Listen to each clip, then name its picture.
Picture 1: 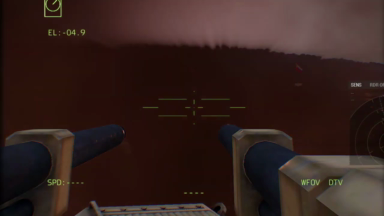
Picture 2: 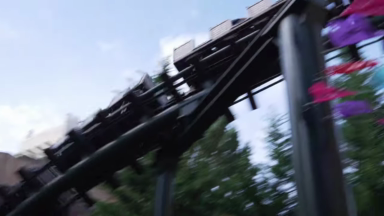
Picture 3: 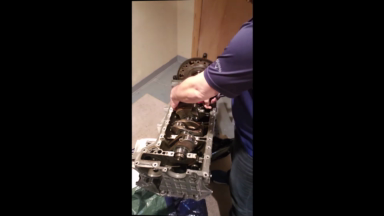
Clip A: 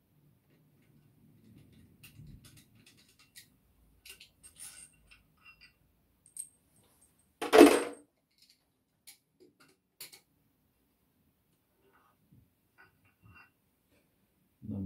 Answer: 3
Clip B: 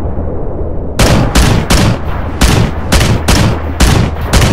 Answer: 1